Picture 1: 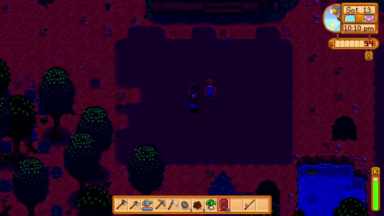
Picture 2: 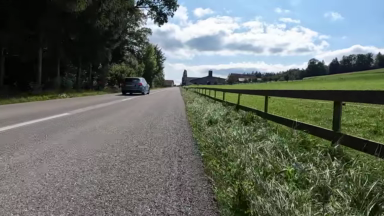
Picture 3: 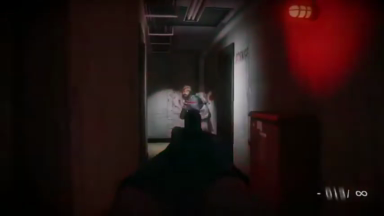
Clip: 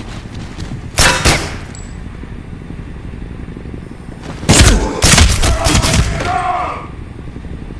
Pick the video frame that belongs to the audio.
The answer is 3